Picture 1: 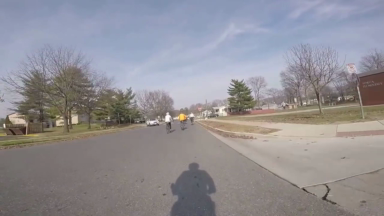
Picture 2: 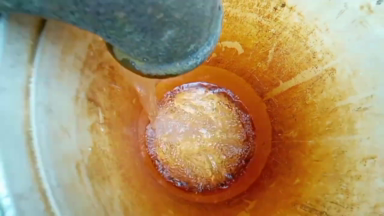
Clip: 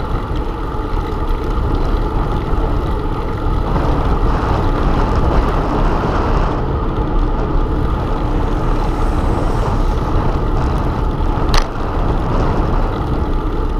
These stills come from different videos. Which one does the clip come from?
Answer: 1